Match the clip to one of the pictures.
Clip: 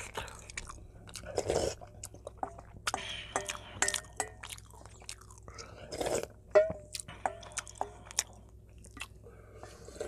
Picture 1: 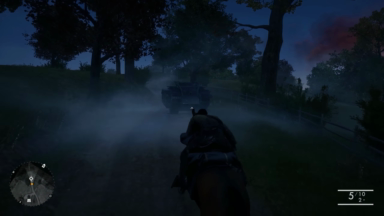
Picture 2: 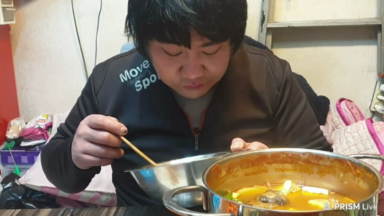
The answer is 2